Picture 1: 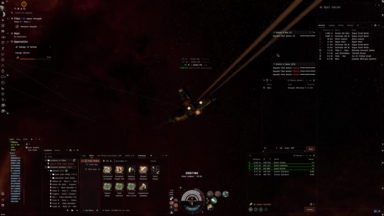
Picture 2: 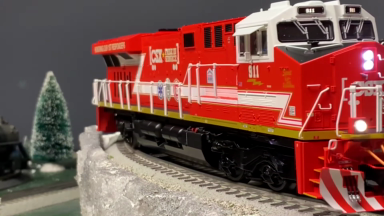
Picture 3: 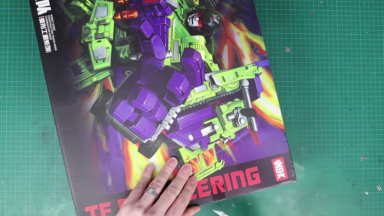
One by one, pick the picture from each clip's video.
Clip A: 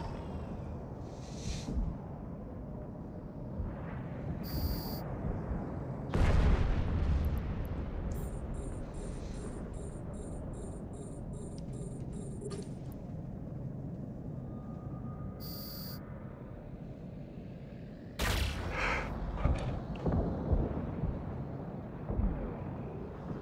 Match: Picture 1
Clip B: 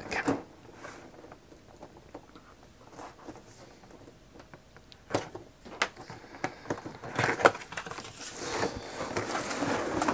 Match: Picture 3